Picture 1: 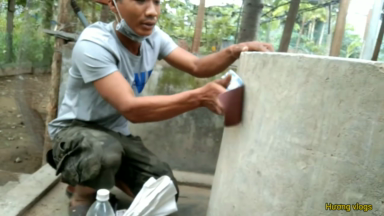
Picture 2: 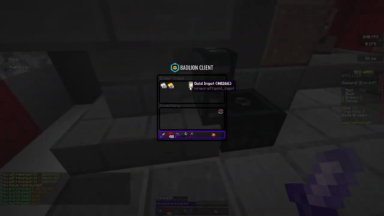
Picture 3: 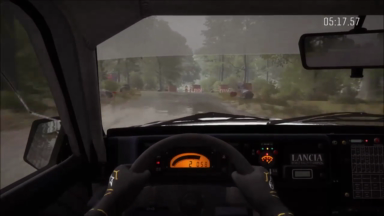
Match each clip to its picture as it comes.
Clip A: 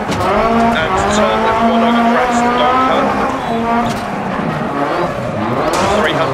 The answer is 3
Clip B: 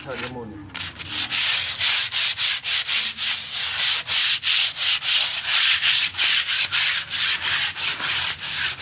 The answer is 1